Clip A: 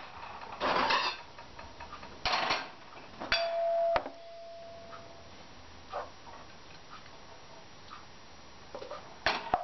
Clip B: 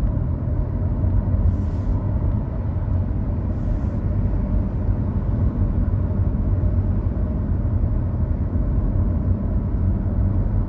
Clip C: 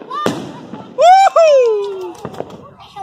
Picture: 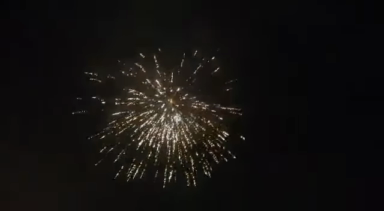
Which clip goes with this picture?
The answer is C